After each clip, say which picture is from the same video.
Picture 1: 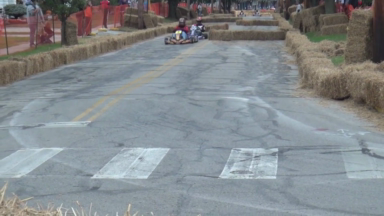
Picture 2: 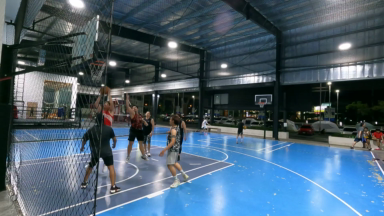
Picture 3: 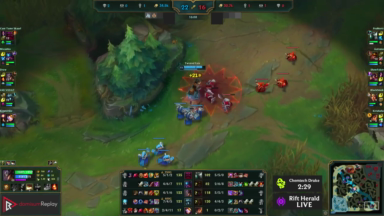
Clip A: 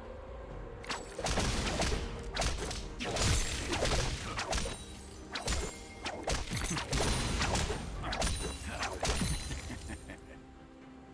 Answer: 3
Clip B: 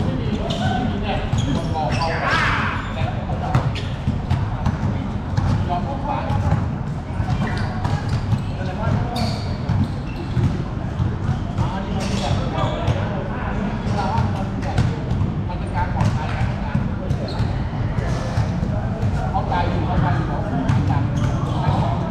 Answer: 2